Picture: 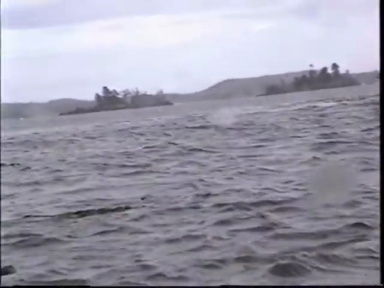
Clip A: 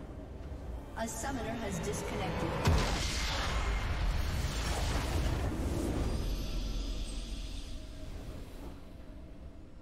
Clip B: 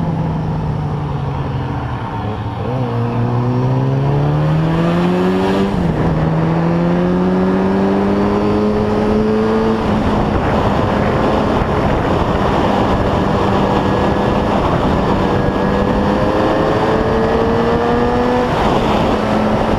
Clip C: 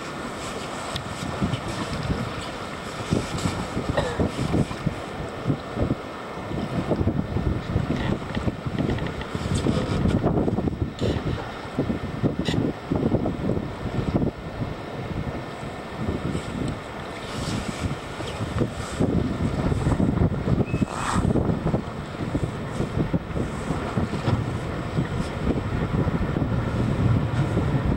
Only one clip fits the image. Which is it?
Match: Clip C